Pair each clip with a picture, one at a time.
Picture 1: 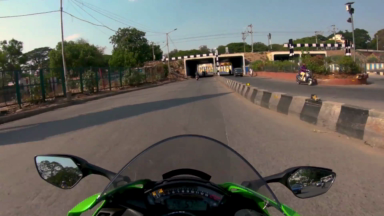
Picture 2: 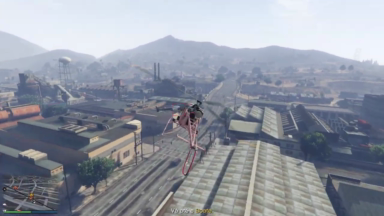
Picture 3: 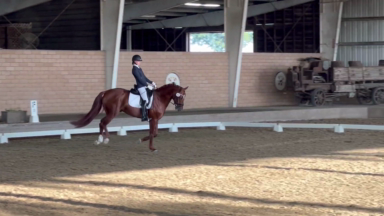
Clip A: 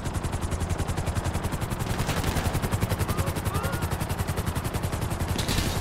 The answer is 2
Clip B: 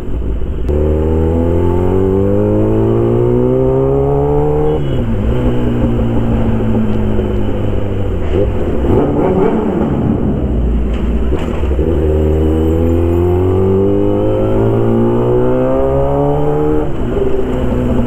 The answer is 1